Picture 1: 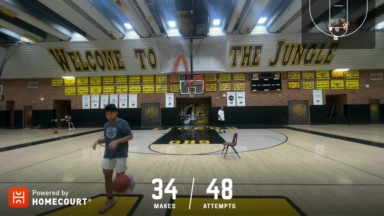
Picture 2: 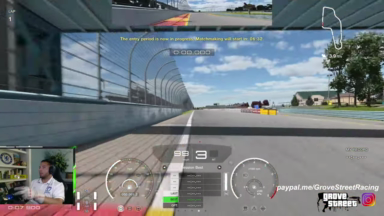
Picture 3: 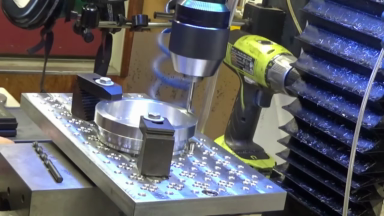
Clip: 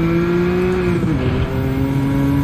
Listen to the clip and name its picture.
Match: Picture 2